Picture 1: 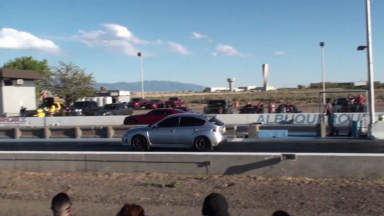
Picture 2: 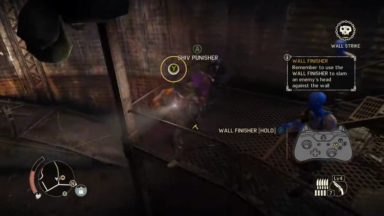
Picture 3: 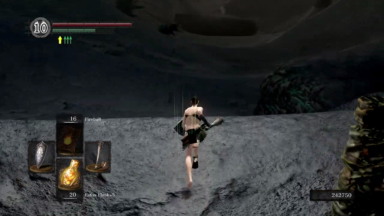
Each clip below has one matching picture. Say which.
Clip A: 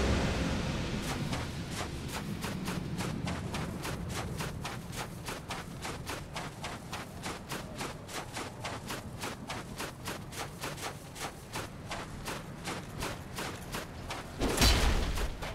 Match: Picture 3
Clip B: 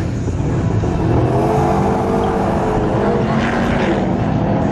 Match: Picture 1